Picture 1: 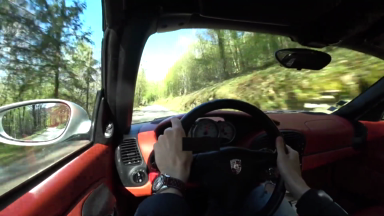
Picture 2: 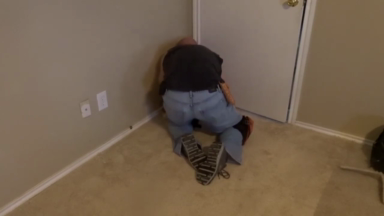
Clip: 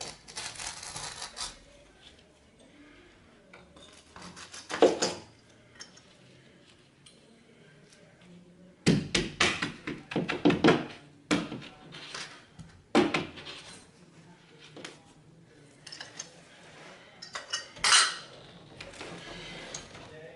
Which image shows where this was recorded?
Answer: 2